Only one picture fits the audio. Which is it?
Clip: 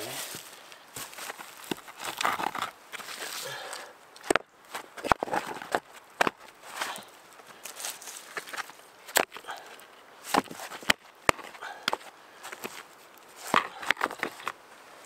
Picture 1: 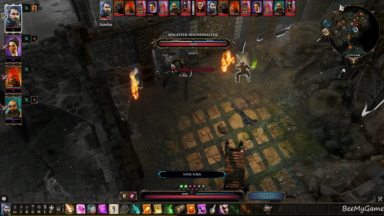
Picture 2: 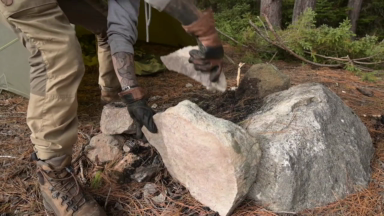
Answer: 2